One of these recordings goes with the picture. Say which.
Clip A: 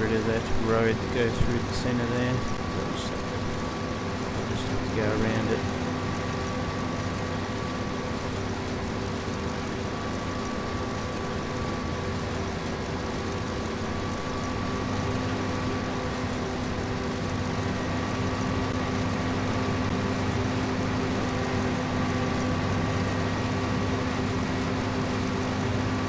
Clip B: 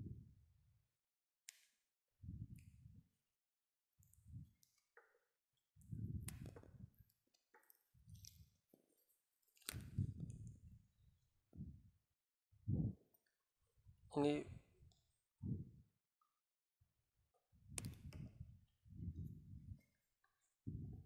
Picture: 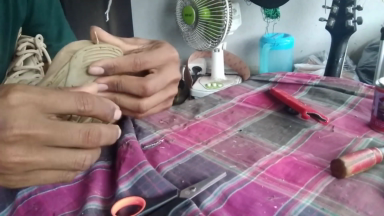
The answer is B